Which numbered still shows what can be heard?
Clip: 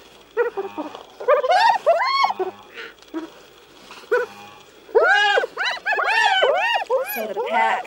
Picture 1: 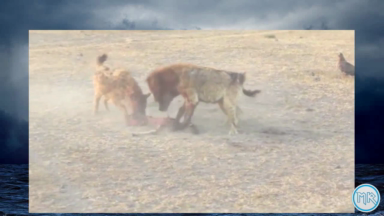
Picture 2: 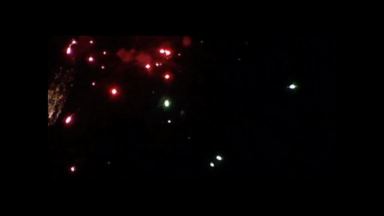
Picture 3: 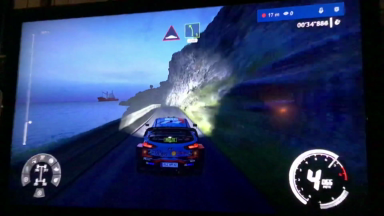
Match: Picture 1